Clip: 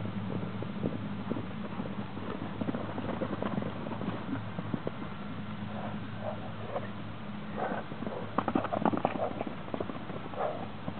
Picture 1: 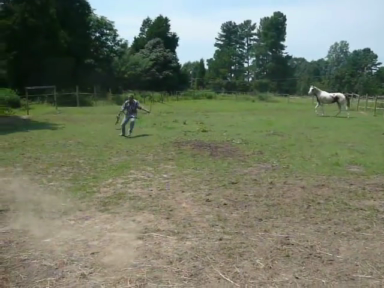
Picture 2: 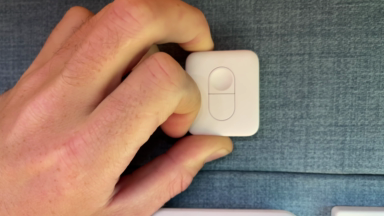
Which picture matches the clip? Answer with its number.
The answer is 1